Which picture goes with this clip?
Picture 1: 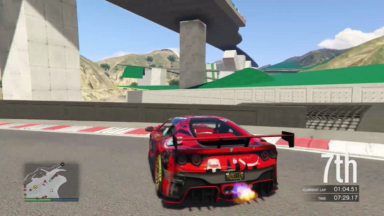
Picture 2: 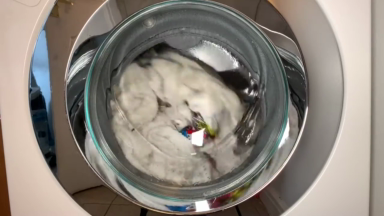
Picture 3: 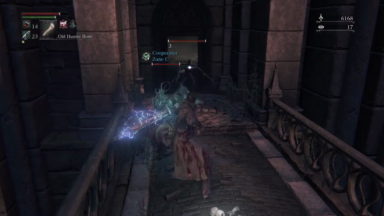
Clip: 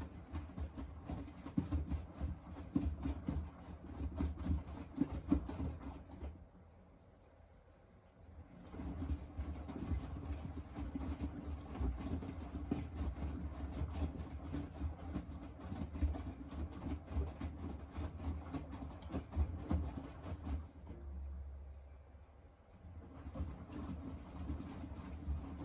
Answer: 2